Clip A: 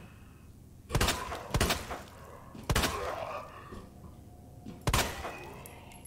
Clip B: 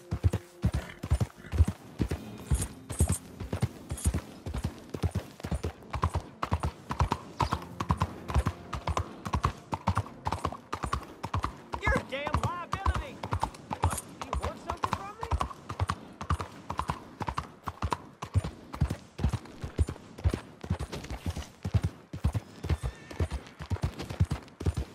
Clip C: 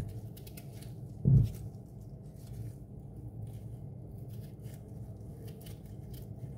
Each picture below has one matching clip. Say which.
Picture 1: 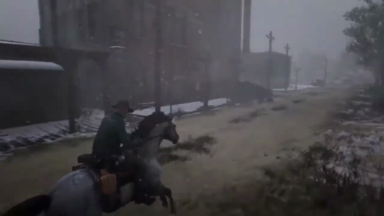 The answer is B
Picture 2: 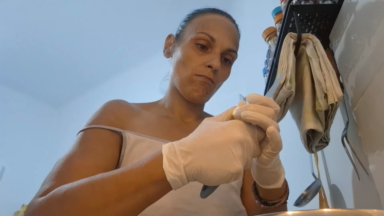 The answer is C